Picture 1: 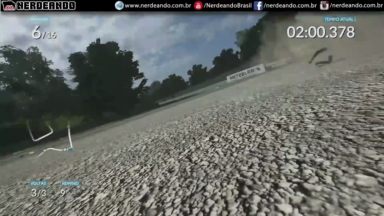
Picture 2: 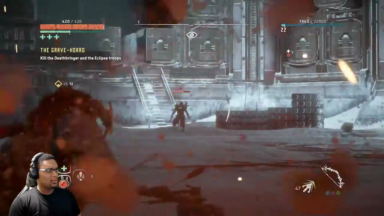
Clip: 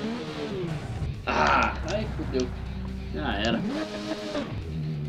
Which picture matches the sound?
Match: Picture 1